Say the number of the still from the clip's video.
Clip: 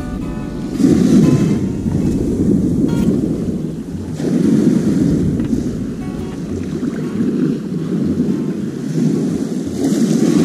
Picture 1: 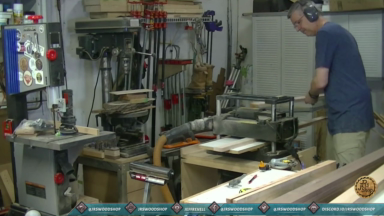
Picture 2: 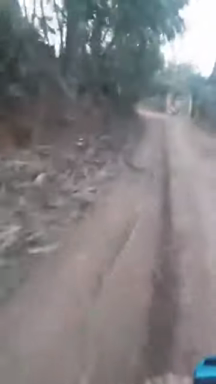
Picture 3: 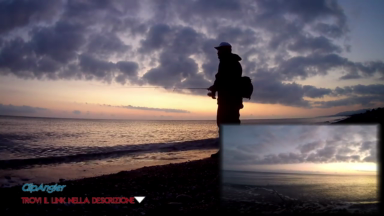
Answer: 3